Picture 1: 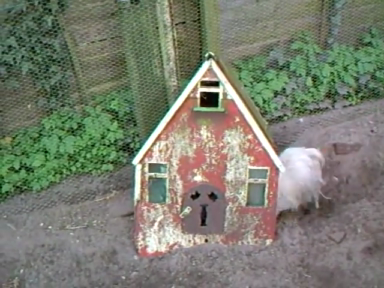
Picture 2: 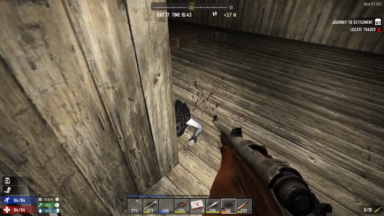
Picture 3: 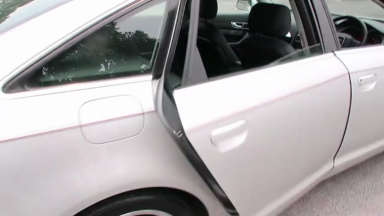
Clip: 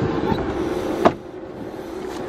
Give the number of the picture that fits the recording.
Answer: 3